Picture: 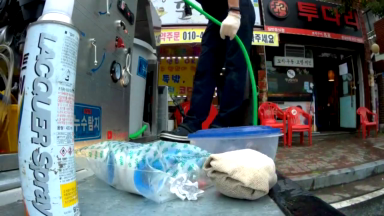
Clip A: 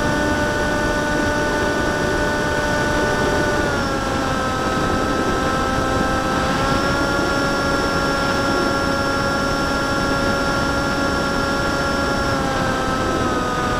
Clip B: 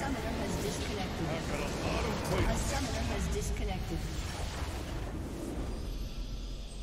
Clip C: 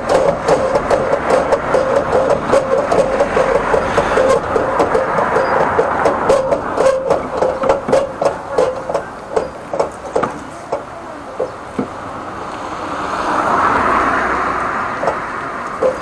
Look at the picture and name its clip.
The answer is C